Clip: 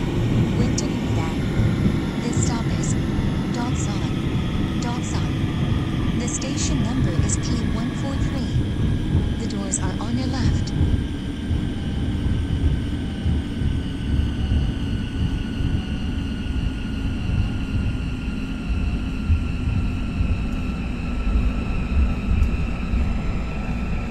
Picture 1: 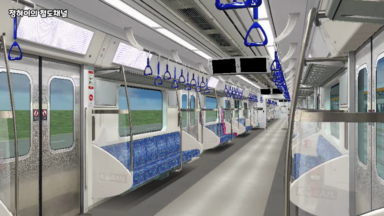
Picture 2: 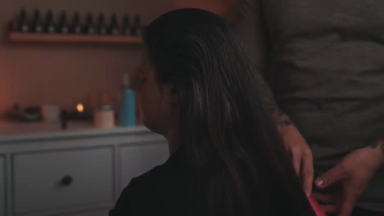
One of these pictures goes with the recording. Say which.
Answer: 1